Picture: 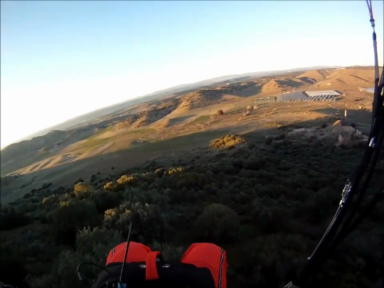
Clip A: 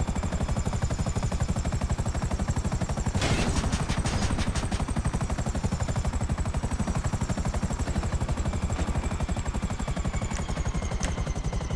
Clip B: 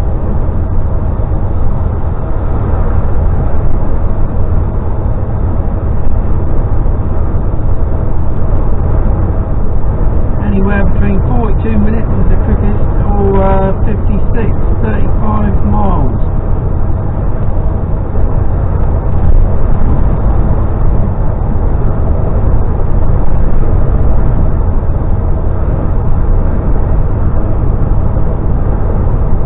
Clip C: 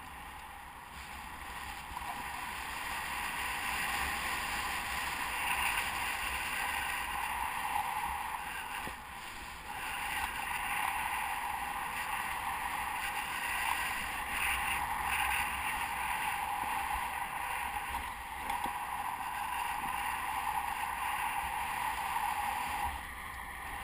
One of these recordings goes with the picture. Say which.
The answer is C